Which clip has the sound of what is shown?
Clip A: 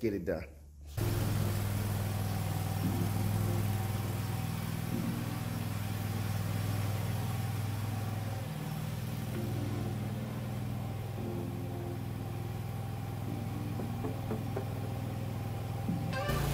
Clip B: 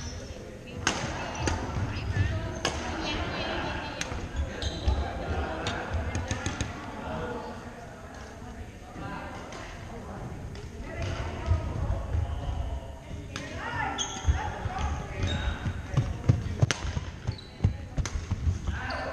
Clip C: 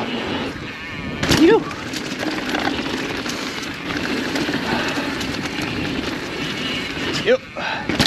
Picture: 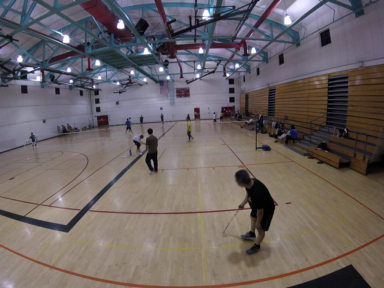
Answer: B